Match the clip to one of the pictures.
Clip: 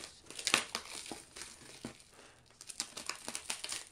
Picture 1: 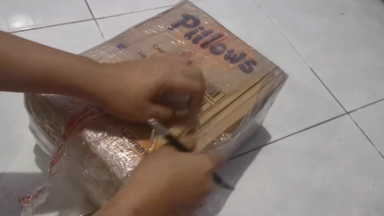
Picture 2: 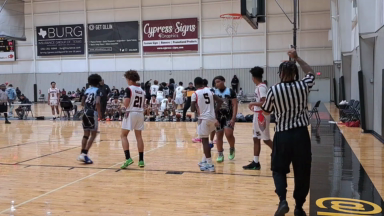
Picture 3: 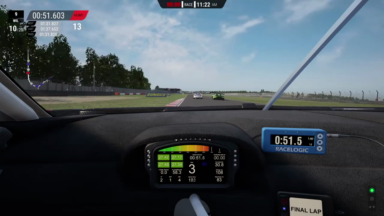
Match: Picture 1